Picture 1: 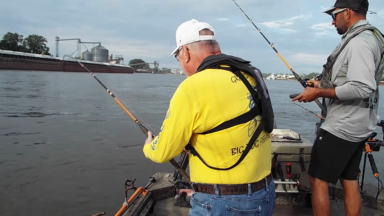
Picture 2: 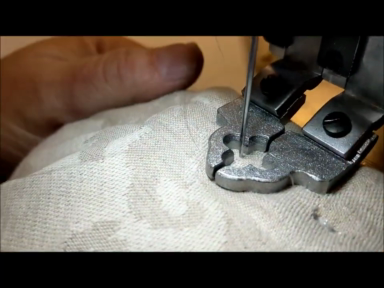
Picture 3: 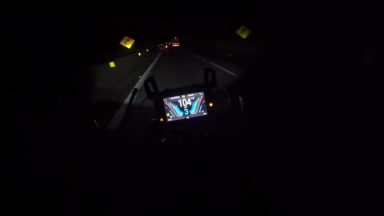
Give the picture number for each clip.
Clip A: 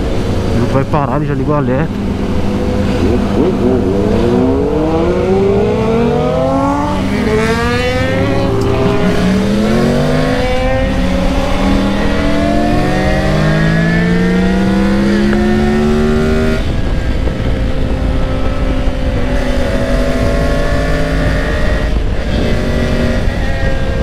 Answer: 3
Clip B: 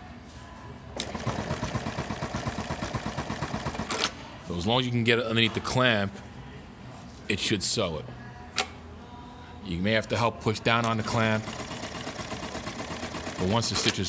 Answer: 2